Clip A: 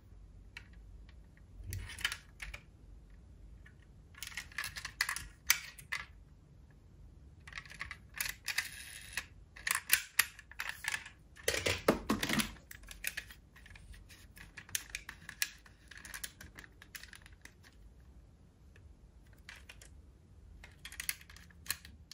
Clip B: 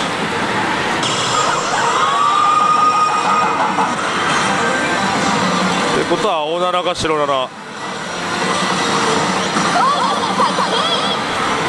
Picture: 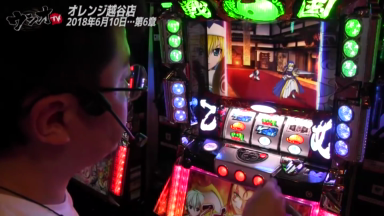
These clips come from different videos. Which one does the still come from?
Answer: B